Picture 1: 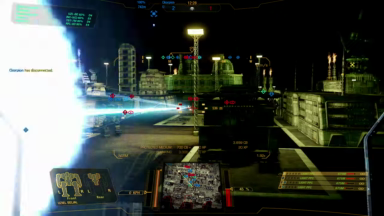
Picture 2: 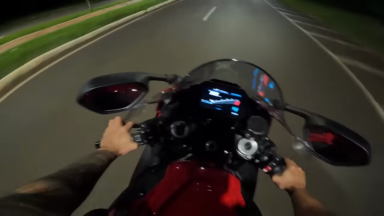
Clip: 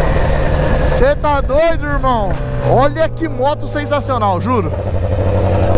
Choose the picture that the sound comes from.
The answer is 2